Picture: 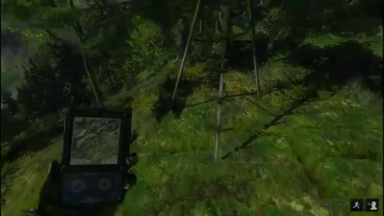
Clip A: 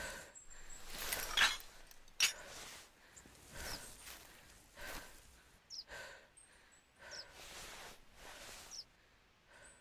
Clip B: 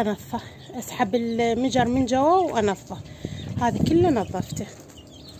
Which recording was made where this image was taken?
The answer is A